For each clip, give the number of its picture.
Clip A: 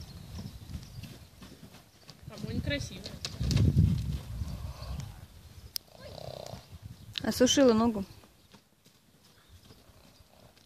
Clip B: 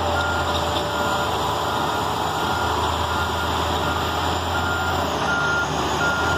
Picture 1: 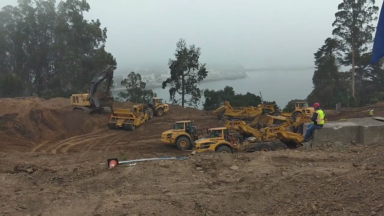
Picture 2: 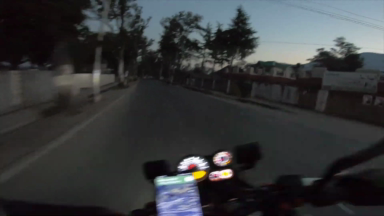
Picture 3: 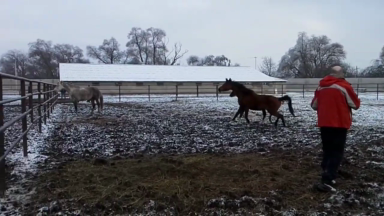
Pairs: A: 3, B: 1